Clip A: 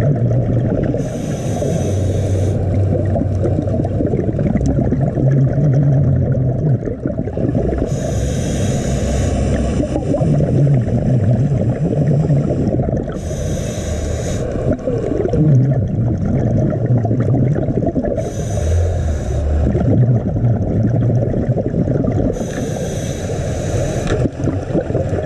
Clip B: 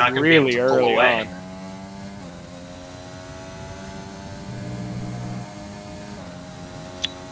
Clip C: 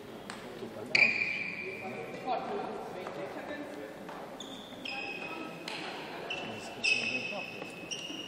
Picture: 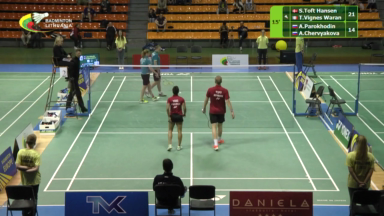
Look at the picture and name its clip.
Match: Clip C